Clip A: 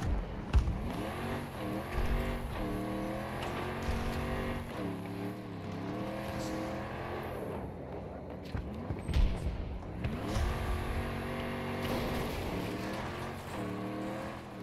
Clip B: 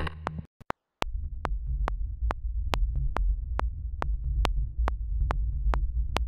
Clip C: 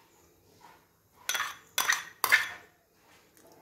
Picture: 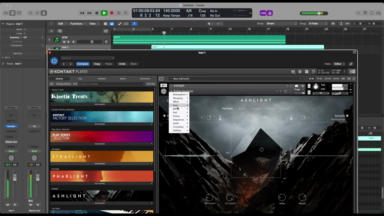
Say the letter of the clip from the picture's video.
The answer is B